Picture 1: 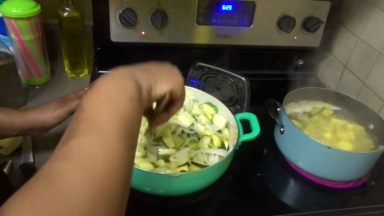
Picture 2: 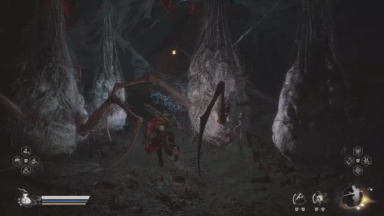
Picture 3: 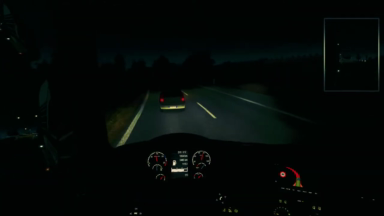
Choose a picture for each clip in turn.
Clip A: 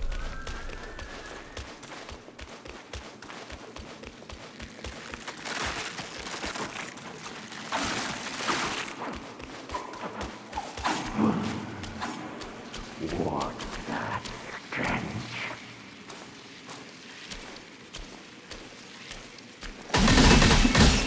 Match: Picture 2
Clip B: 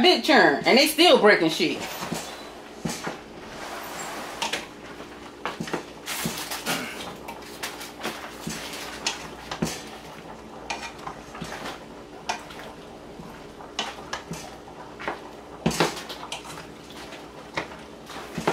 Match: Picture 1